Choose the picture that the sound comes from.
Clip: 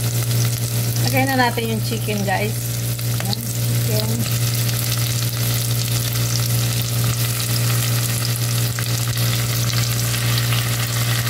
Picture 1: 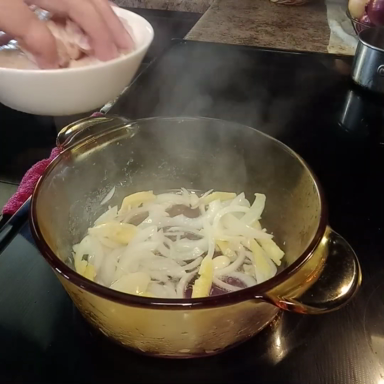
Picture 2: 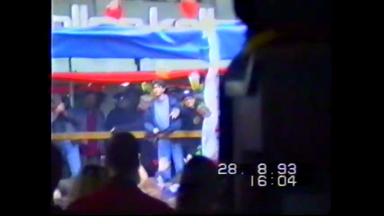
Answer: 1